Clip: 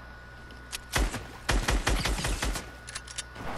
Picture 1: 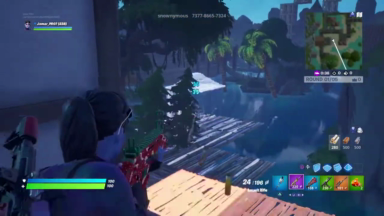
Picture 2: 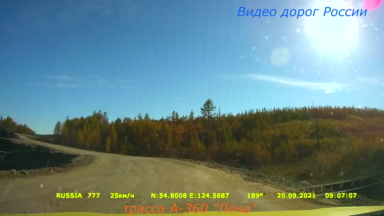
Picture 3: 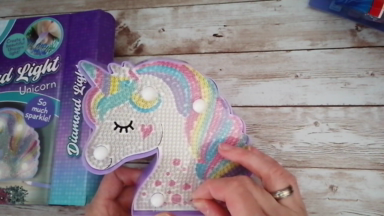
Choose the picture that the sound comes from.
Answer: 1